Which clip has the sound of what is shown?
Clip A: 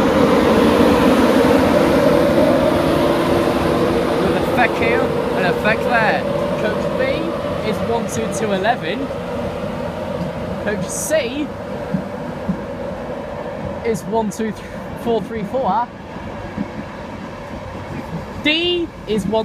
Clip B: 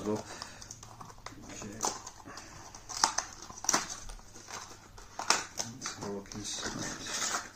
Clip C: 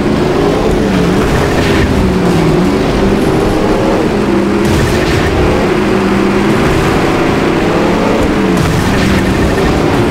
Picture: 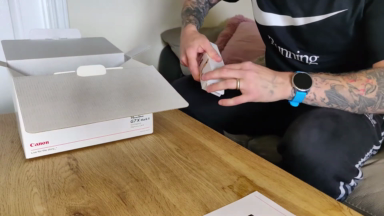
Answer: B